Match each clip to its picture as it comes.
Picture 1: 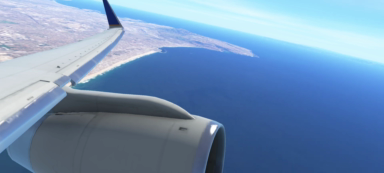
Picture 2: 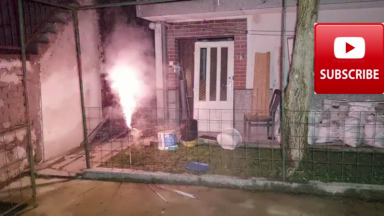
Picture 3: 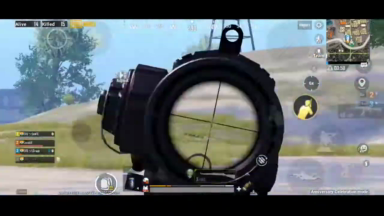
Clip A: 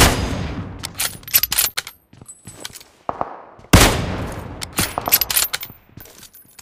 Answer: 3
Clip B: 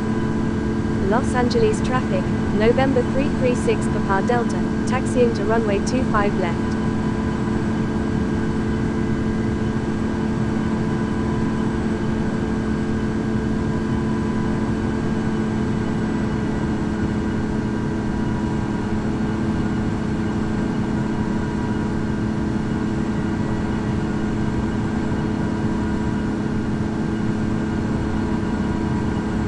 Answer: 1